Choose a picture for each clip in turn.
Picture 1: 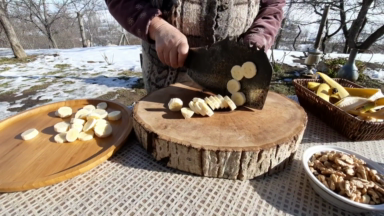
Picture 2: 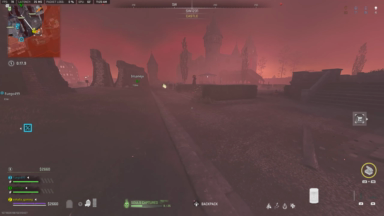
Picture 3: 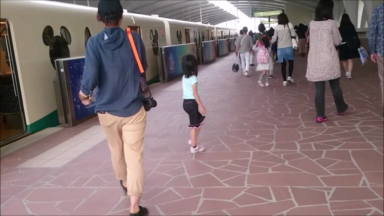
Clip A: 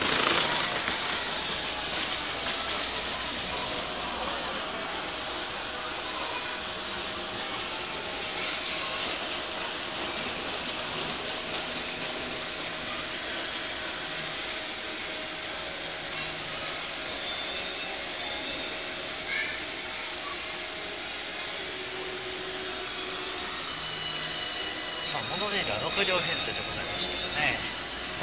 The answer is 3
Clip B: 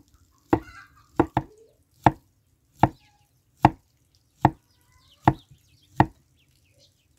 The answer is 1